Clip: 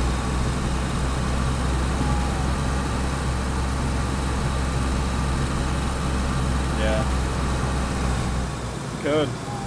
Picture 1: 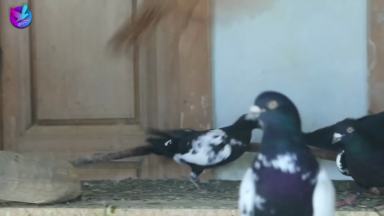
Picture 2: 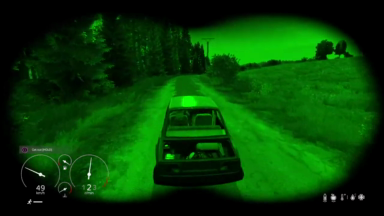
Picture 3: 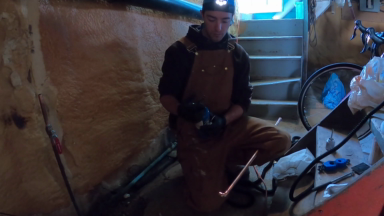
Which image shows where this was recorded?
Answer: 2